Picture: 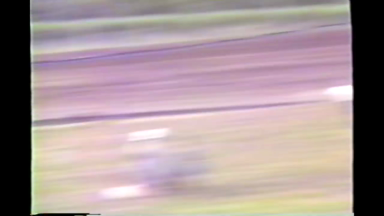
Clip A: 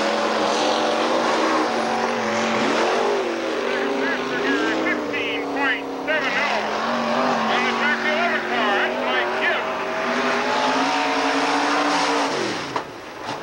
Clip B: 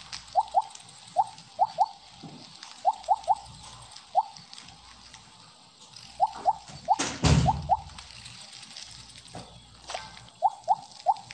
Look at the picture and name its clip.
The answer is A